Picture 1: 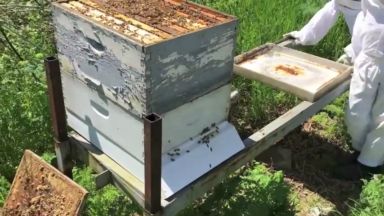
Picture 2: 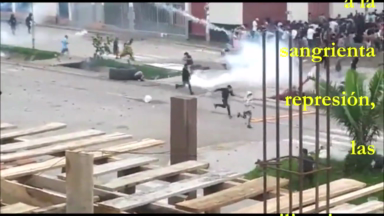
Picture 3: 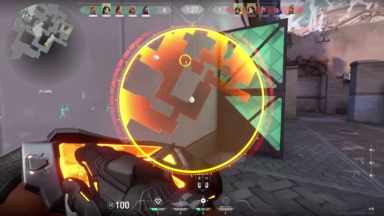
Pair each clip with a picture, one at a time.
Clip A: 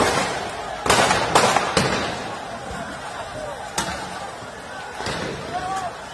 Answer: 2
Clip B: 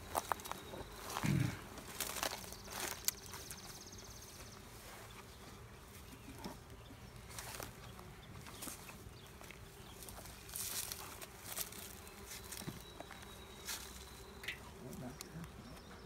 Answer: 1